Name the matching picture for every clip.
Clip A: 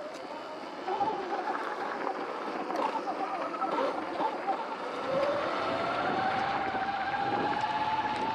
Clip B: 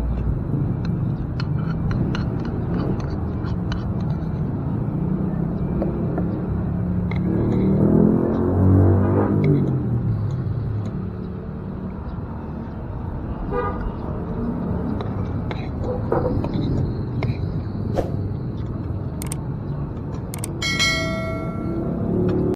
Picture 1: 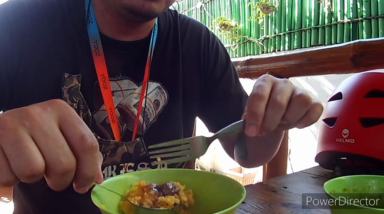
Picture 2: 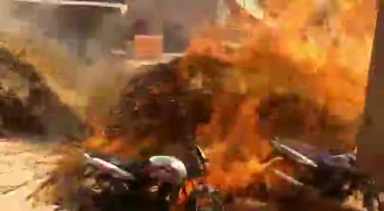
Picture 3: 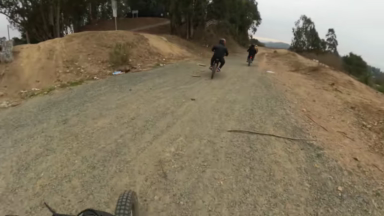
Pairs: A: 3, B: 1